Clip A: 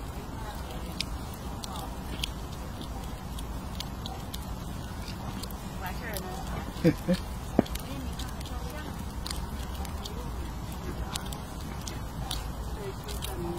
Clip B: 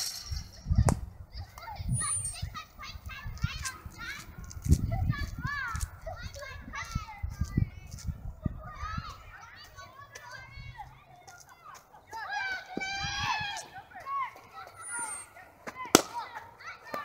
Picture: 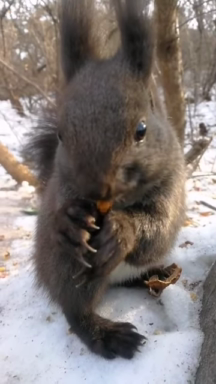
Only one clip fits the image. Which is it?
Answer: A